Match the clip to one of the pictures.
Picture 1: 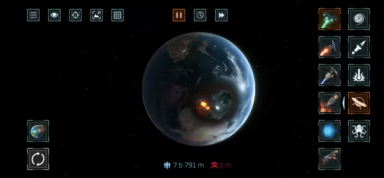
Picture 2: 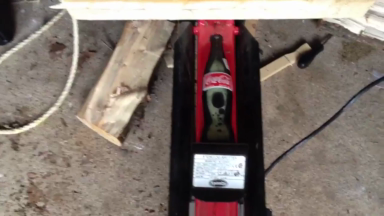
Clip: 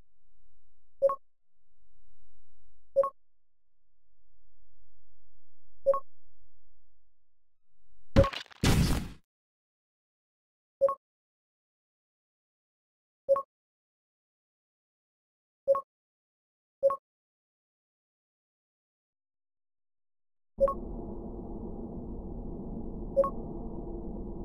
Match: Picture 1